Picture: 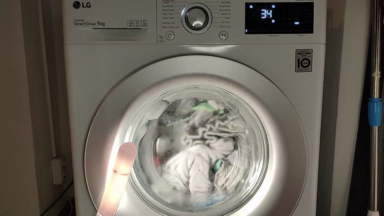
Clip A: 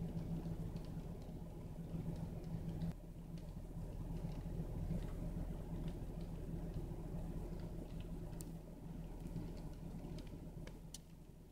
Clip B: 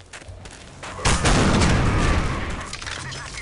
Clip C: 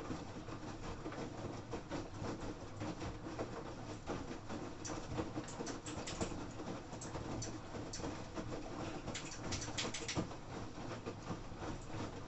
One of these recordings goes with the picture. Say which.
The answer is C